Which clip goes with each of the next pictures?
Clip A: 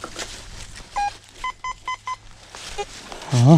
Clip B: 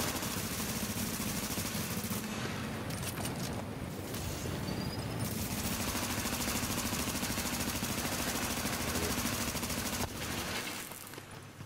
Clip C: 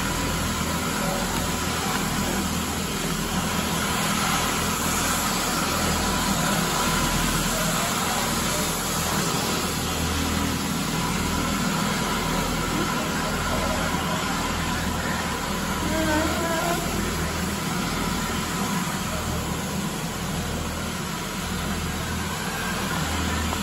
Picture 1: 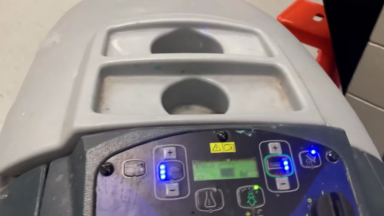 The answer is C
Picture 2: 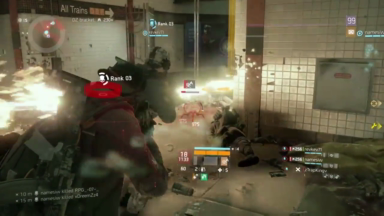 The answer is B